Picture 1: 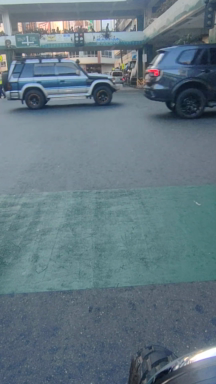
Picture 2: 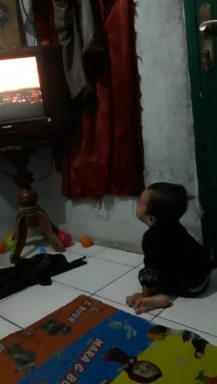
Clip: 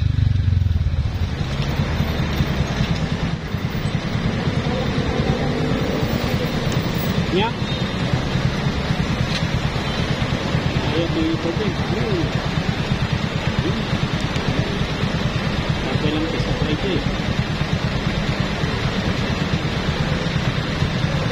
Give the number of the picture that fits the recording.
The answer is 1